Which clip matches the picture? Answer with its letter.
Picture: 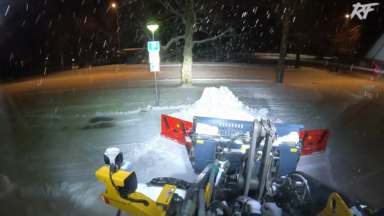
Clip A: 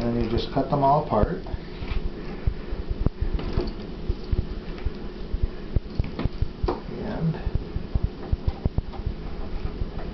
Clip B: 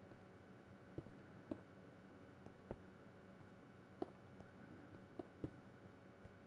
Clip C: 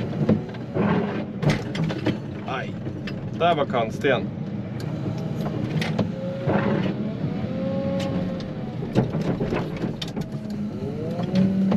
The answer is C